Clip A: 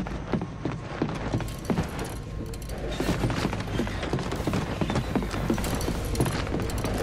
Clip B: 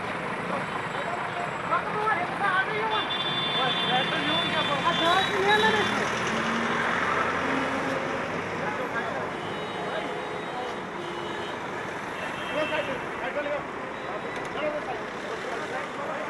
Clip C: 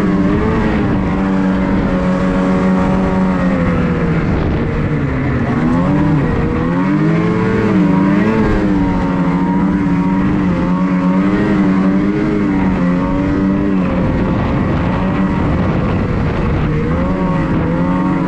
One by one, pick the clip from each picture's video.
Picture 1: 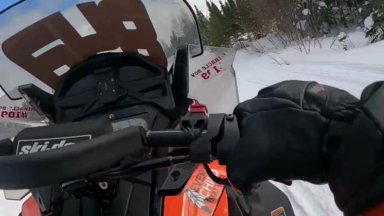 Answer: C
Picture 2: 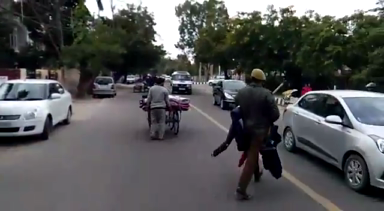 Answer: B